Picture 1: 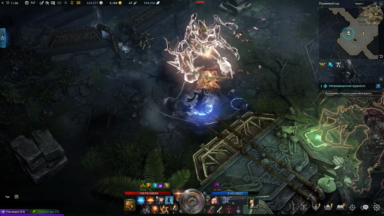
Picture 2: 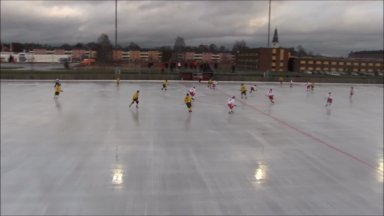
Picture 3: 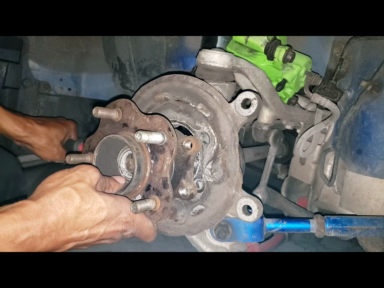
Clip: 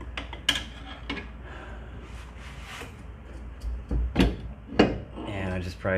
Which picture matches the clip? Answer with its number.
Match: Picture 3